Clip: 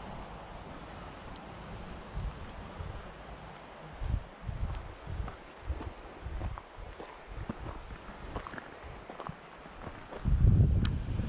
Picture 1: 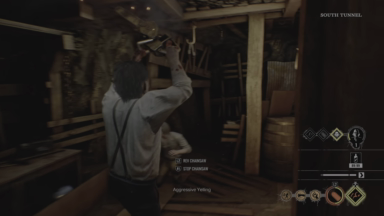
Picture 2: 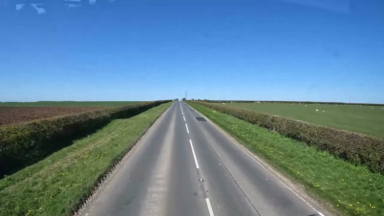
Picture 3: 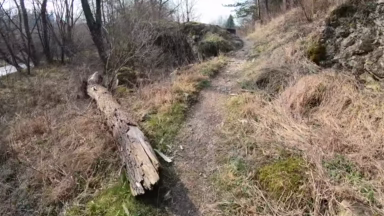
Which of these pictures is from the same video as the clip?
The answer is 3